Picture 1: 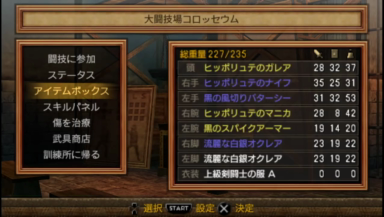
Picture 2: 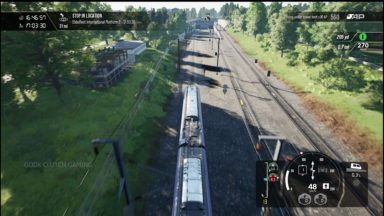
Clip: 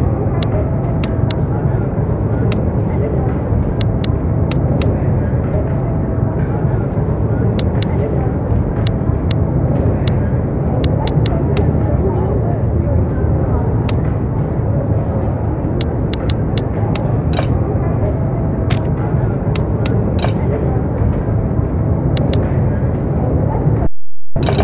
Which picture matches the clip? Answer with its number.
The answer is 1